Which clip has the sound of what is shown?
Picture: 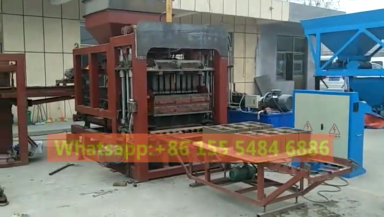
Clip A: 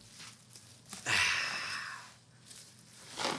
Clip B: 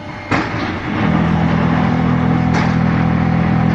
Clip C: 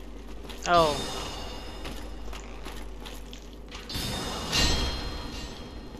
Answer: B